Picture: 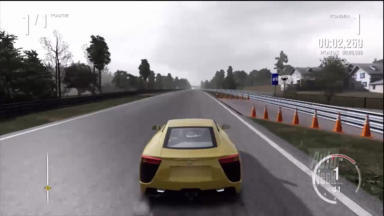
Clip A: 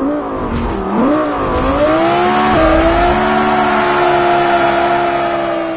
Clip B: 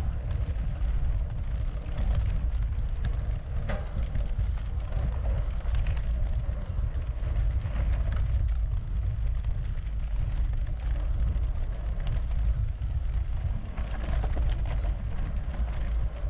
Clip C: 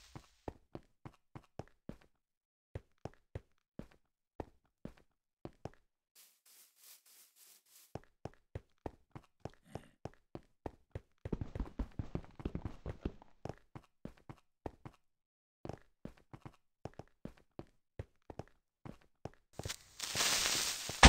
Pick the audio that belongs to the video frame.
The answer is A